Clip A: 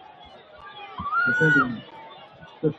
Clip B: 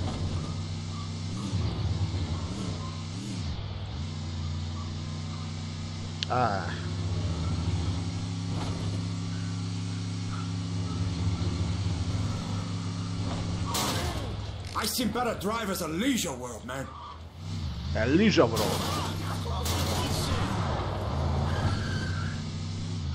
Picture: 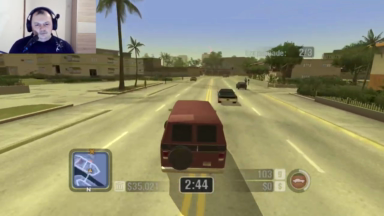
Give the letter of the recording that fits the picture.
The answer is B